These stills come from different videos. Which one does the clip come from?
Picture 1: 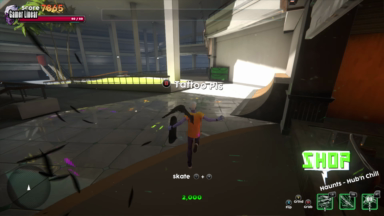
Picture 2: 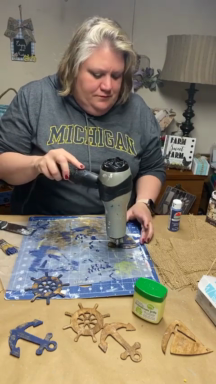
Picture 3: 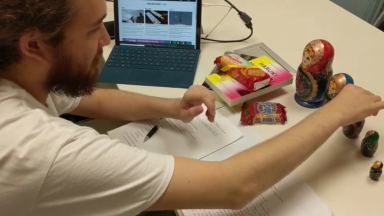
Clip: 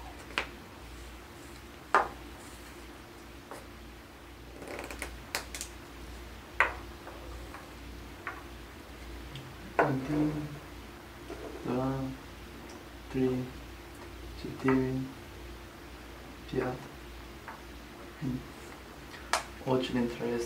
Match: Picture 3